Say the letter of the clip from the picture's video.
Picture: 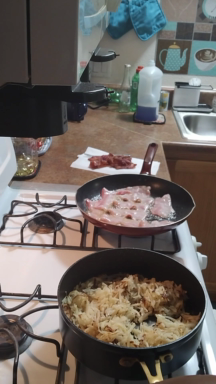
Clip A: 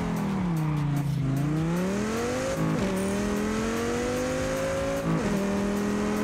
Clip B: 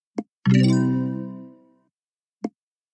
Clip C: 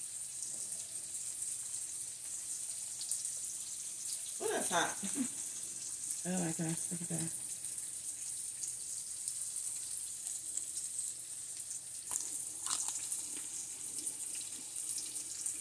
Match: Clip C